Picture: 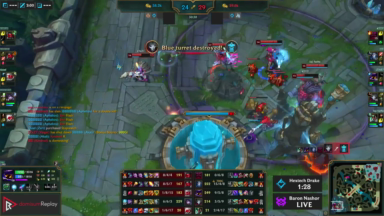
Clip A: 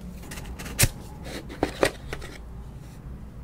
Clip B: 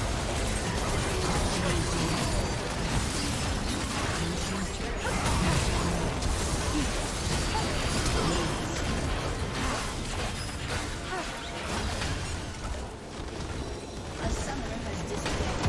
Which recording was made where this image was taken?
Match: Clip B